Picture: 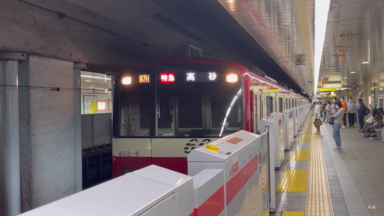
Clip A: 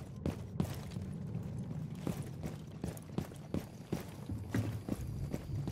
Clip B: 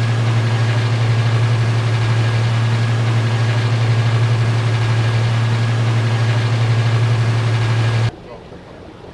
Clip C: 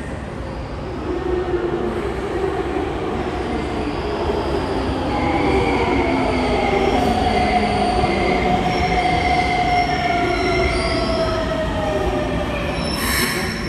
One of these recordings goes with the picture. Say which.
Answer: C